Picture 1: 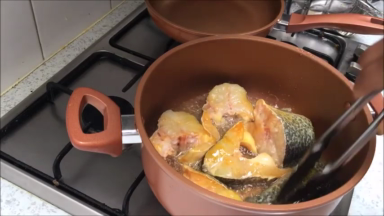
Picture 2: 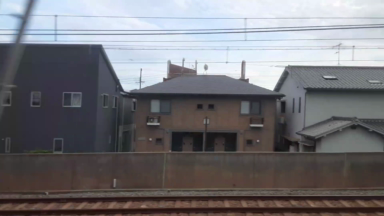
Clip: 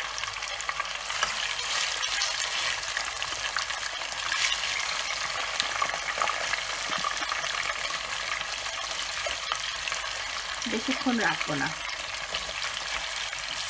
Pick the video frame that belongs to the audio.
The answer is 1